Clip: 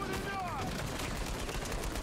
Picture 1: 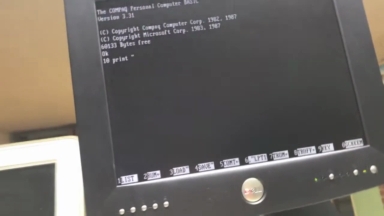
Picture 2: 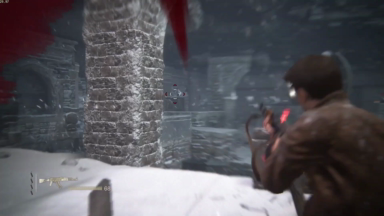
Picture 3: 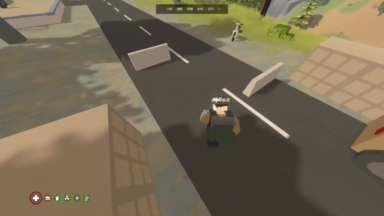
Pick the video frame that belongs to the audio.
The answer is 2